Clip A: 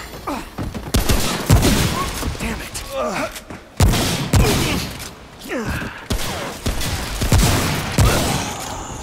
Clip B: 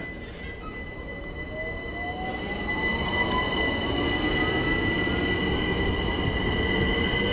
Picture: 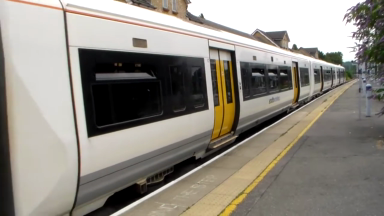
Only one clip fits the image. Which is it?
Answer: B